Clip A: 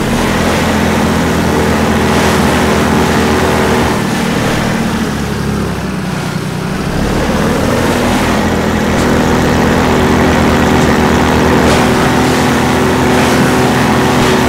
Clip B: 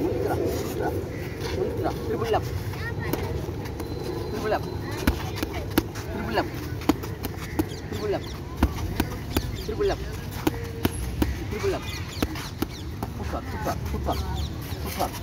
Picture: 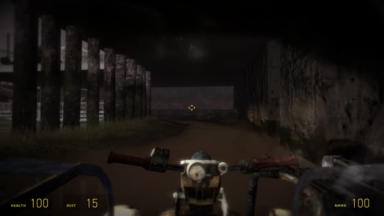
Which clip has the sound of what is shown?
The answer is A